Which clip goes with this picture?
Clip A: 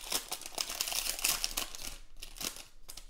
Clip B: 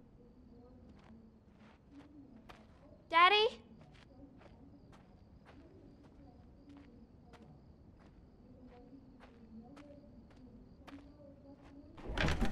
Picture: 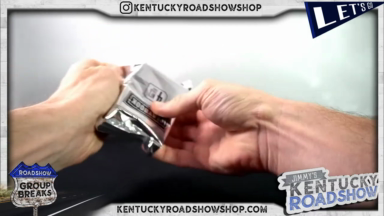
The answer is A